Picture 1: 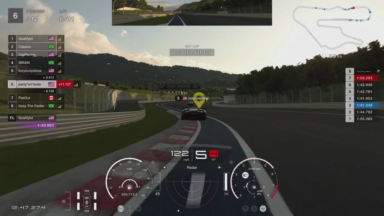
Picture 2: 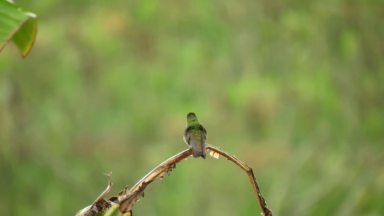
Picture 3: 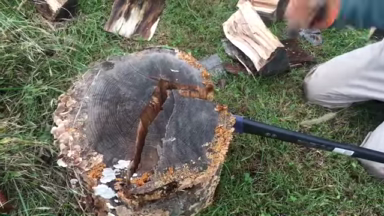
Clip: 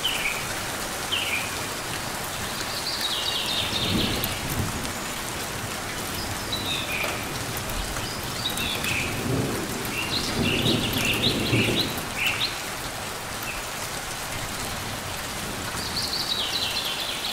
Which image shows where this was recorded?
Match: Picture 2